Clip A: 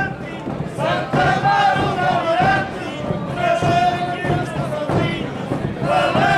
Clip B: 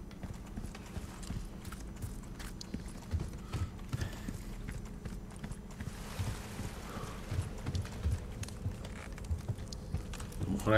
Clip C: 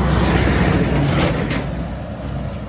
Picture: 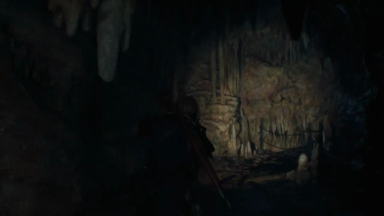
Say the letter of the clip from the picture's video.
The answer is B